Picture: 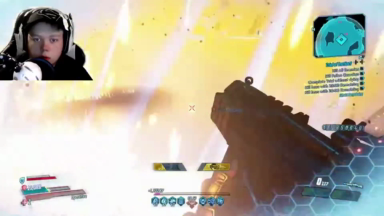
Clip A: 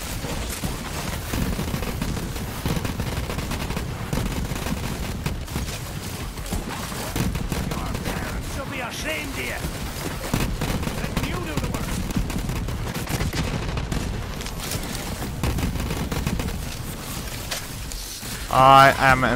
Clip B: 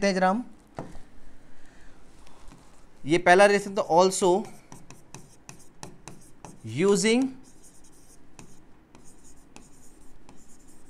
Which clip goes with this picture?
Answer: A